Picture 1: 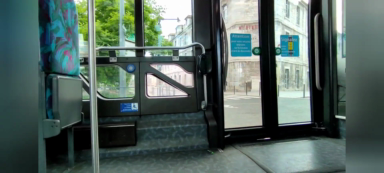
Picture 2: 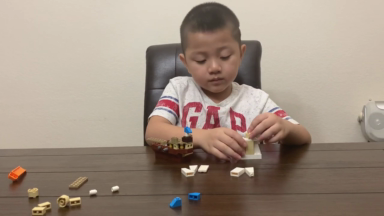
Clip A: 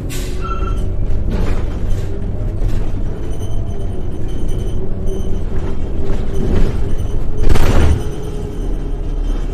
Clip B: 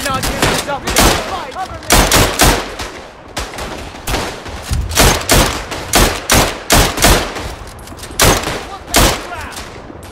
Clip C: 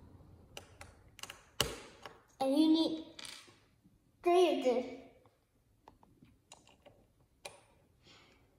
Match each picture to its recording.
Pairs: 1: A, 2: C